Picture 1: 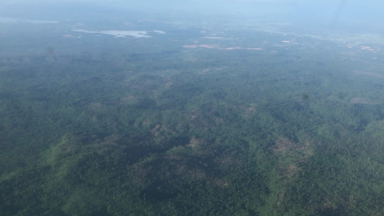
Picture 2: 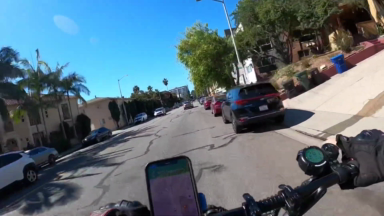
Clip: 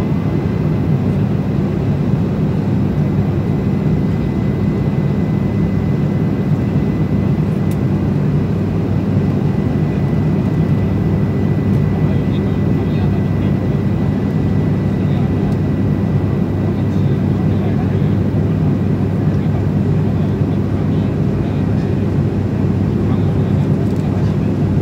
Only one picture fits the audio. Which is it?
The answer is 1